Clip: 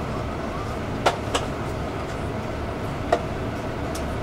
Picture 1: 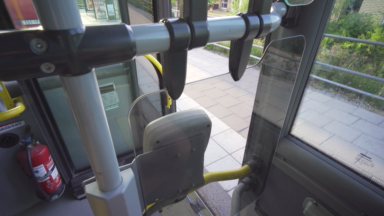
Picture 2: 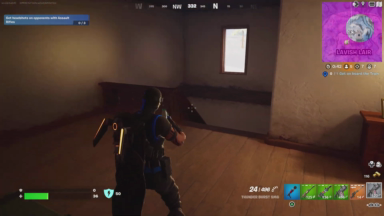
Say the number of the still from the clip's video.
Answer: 1